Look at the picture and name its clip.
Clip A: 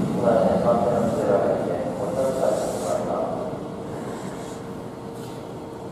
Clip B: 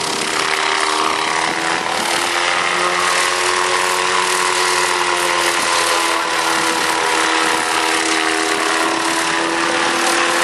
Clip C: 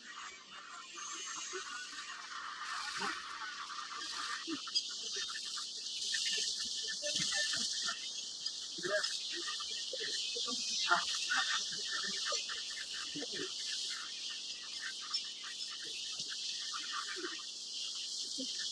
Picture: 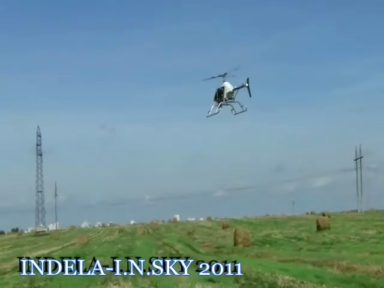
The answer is B